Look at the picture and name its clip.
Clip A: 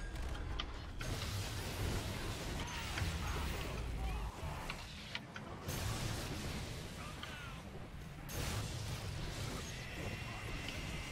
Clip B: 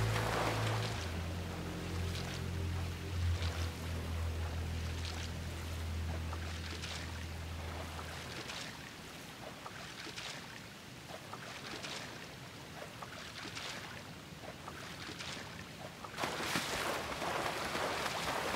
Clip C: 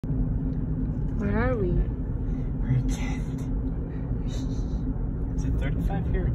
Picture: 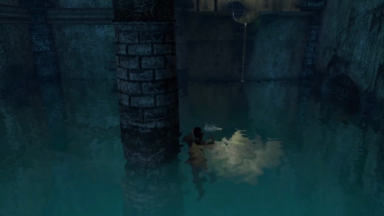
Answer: B